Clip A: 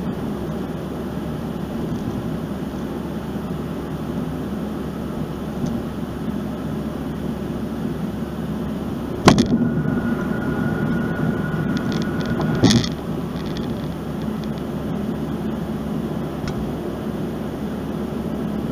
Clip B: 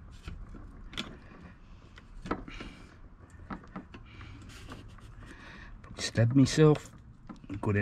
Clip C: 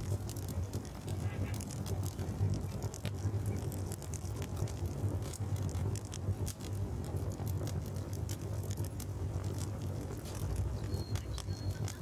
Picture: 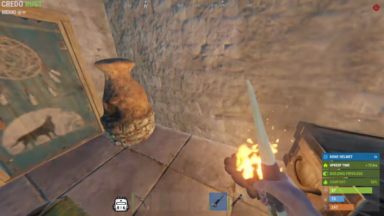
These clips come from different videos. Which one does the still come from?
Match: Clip C